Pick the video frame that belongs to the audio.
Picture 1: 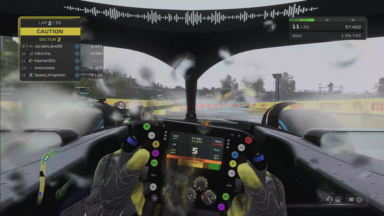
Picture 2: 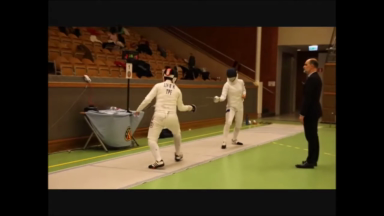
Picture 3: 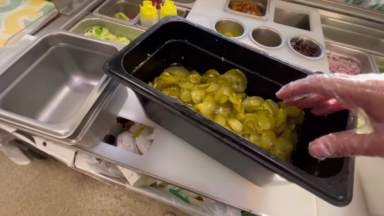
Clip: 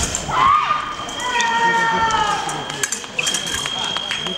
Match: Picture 2